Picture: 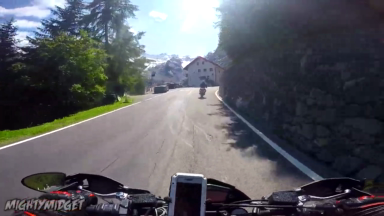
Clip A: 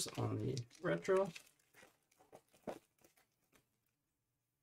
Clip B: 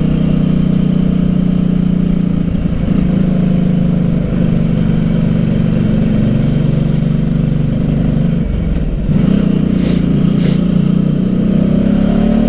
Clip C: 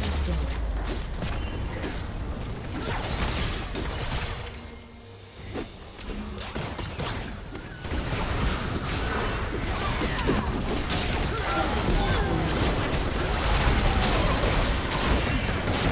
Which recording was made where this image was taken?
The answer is B